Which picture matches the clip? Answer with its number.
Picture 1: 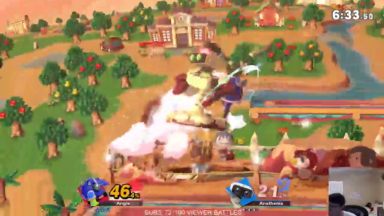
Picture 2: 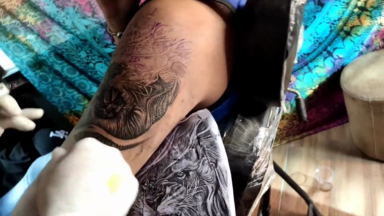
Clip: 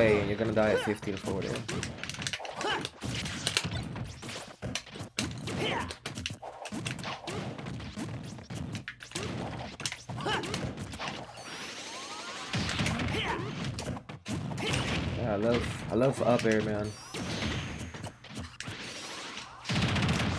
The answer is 1